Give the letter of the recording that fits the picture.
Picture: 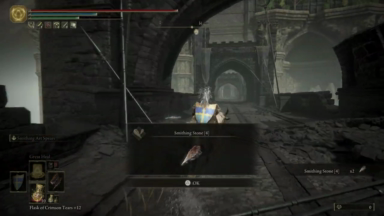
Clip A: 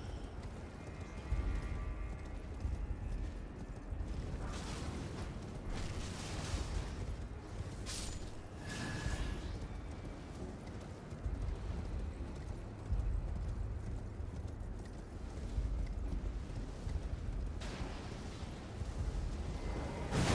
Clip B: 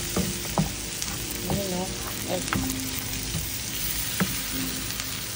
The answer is A